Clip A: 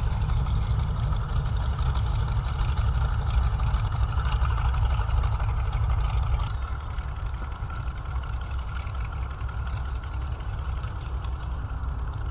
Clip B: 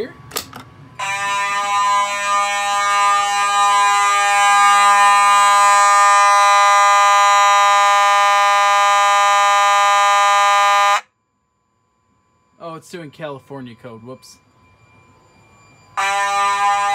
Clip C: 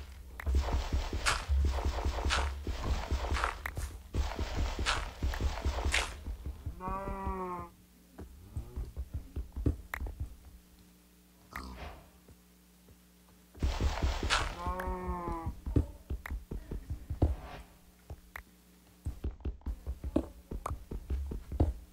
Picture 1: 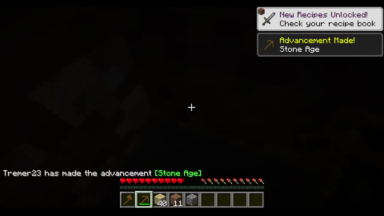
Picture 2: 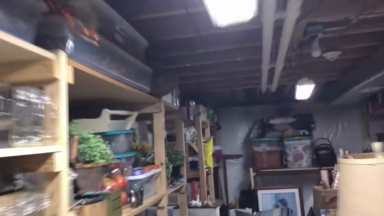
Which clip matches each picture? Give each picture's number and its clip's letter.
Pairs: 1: C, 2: B